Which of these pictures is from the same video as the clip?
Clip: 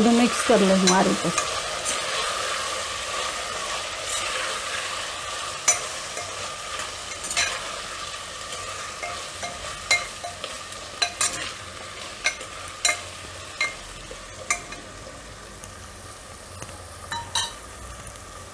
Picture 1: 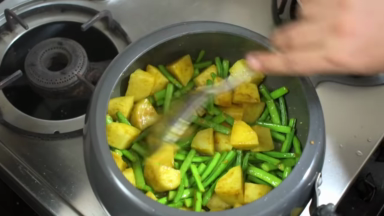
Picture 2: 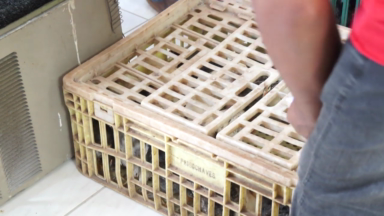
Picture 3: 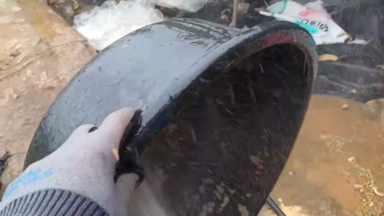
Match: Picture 1